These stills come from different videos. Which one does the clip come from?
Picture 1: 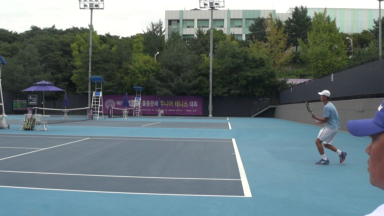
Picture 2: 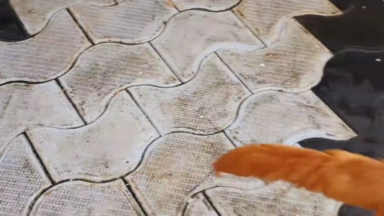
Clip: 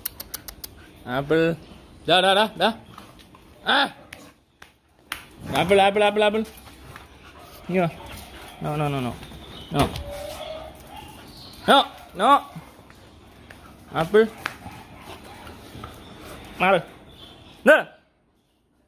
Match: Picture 2